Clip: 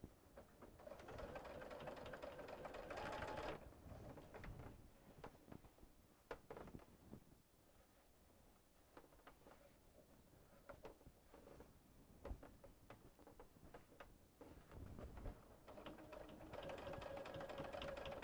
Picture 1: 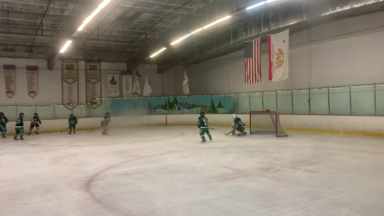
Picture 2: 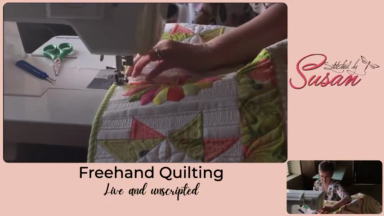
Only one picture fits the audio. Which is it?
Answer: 2